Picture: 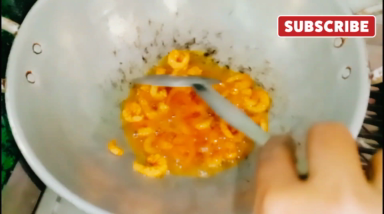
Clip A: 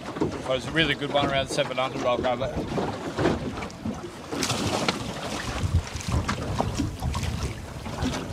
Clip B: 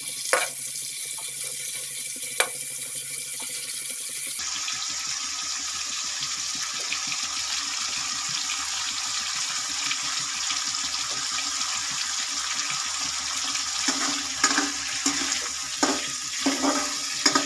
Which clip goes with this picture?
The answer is B